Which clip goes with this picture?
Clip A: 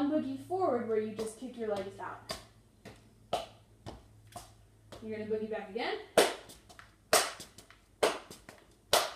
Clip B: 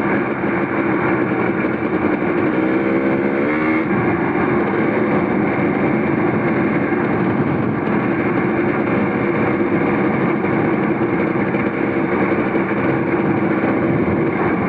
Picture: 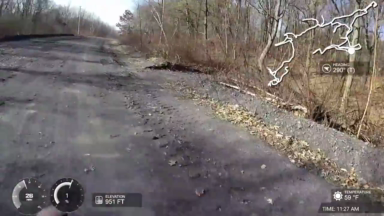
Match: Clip B